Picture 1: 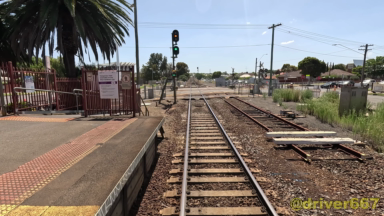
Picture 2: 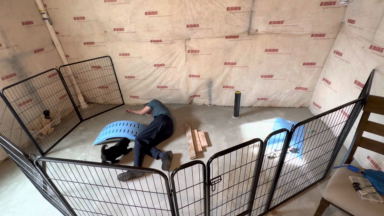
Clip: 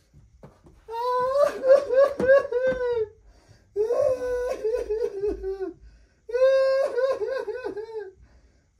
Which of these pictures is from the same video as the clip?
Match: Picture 2